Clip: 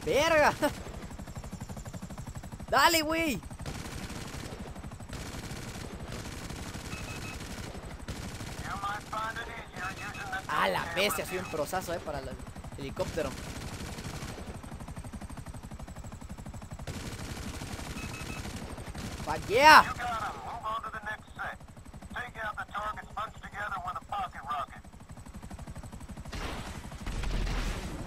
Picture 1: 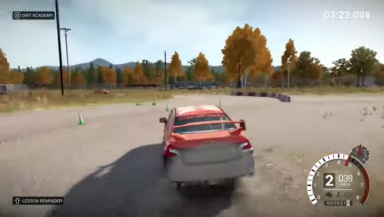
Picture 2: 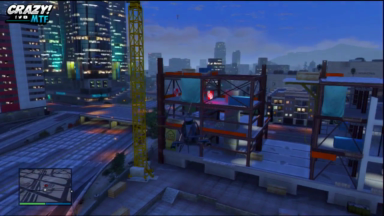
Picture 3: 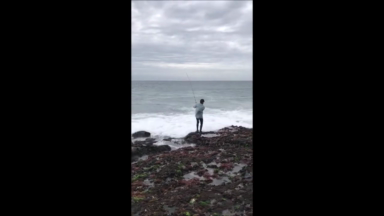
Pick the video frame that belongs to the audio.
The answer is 2